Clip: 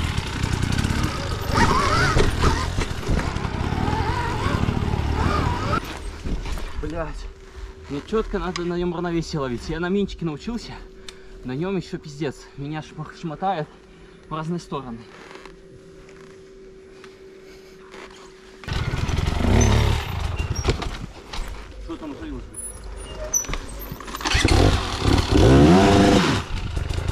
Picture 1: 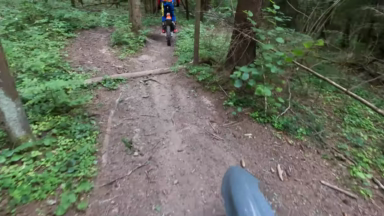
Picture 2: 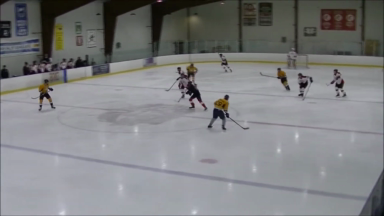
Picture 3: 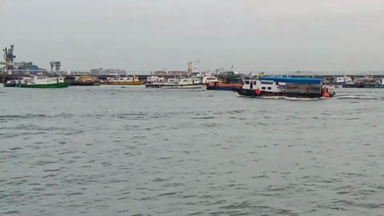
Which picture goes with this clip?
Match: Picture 1